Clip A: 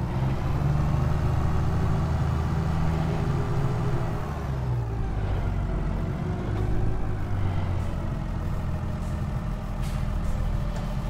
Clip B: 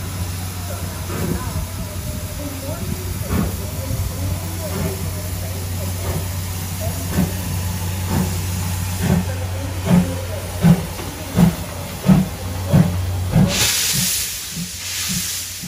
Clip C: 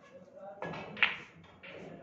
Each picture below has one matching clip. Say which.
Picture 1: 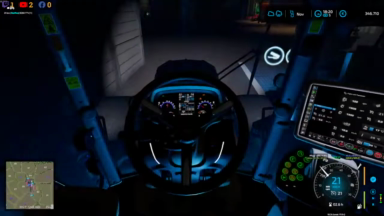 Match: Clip A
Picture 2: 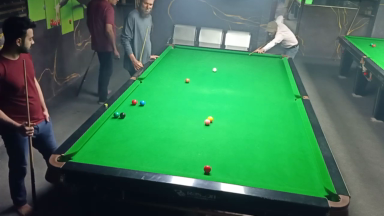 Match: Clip C